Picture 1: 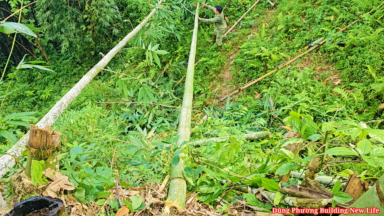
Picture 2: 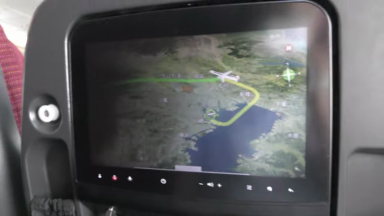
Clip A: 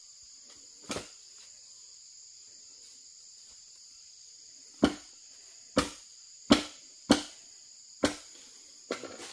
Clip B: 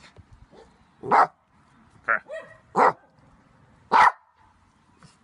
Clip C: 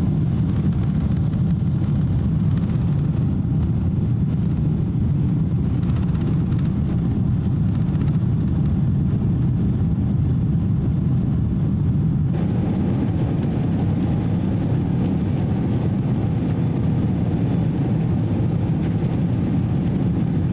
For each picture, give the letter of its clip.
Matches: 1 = A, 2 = C